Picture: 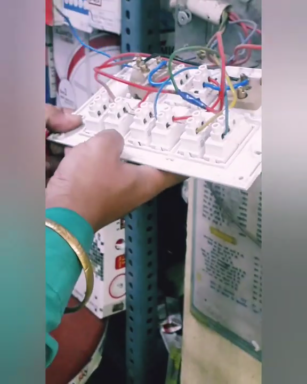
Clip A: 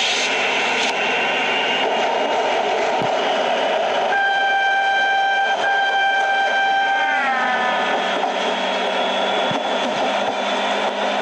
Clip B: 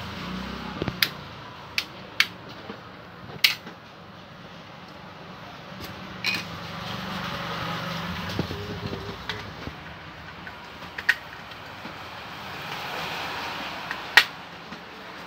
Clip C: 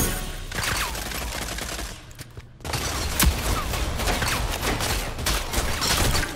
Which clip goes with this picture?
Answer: B